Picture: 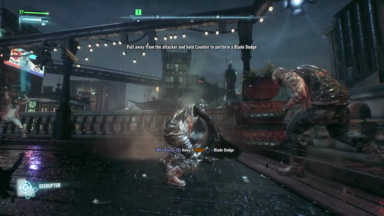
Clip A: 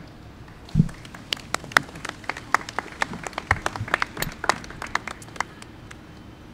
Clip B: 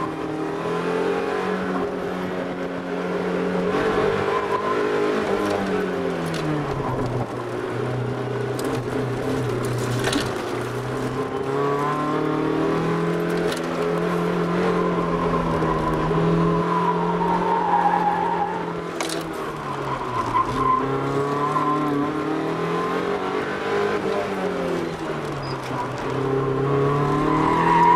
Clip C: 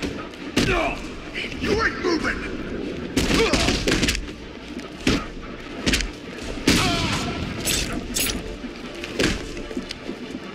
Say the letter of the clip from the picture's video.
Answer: C